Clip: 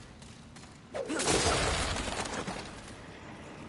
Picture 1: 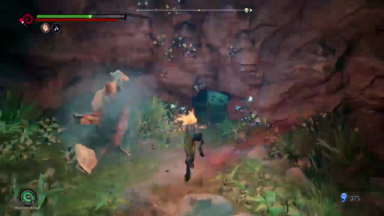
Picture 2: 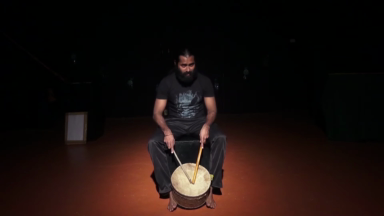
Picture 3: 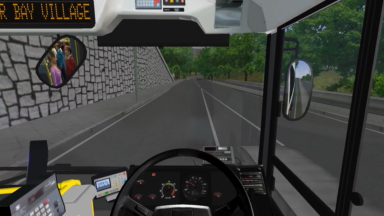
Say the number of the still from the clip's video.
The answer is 1